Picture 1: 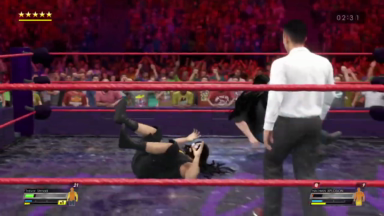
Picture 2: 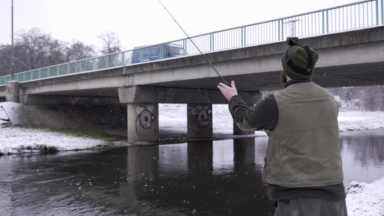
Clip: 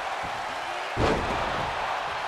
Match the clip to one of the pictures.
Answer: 1